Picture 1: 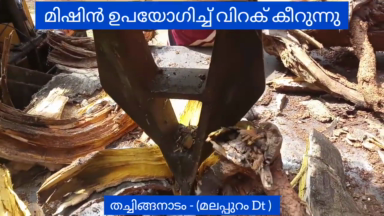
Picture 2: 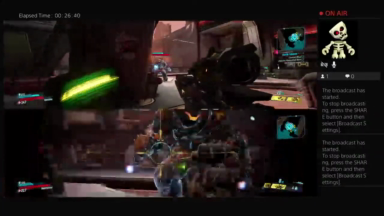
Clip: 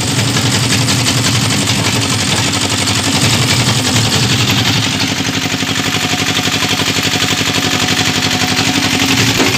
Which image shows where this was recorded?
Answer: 1